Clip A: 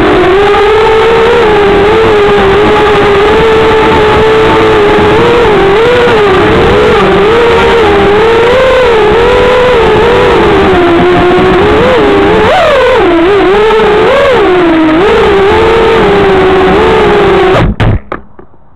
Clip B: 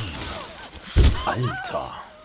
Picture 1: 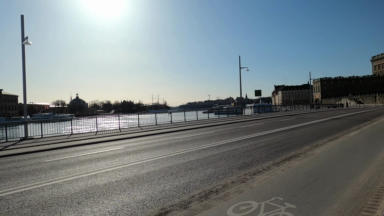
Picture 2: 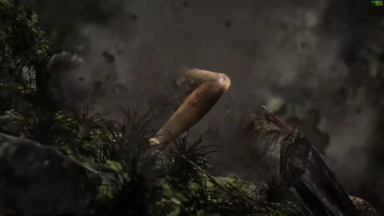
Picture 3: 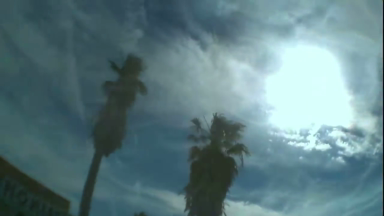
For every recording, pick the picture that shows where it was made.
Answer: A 3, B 2